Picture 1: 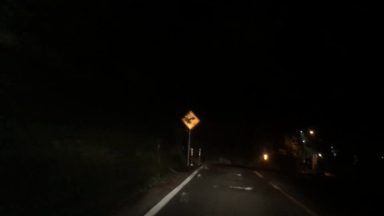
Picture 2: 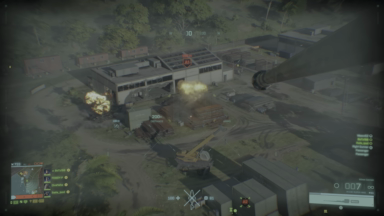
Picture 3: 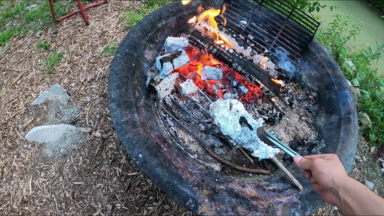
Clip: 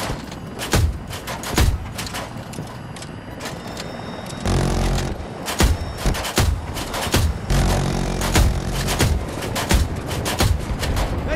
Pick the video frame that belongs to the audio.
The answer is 2